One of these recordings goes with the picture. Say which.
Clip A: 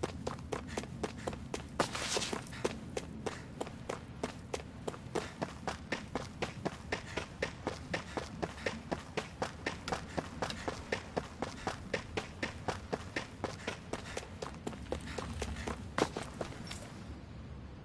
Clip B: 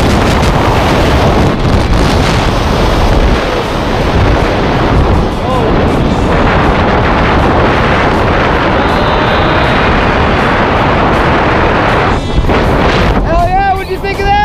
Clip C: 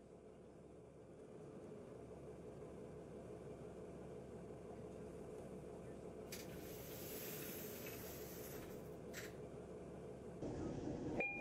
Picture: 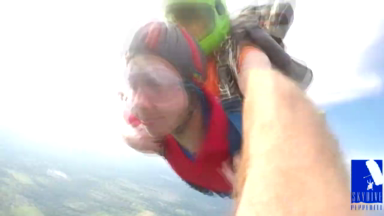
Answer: B